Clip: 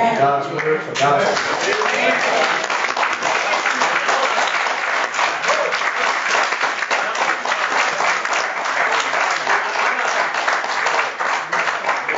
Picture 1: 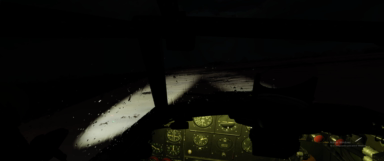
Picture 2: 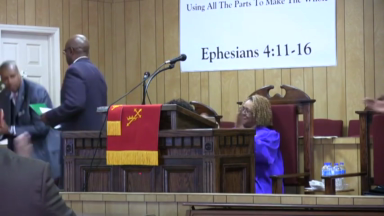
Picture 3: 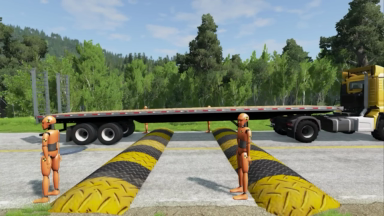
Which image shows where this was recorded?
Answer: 2